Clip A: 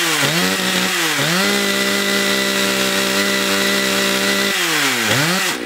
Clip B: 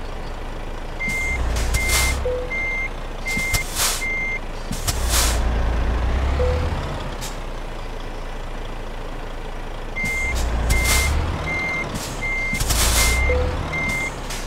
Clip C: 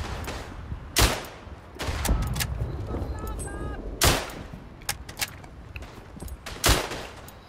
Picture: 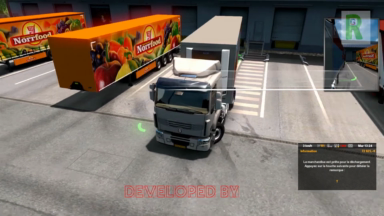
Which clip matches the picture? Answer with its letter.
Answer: B